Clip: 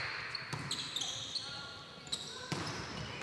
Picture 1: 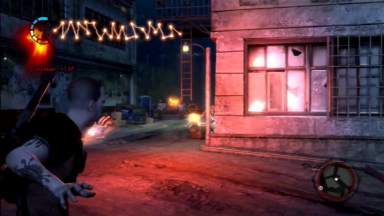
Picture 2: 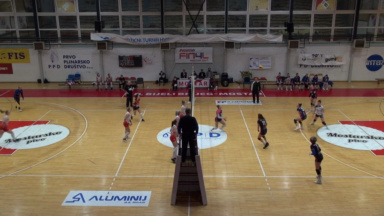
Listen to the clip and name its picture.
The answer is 2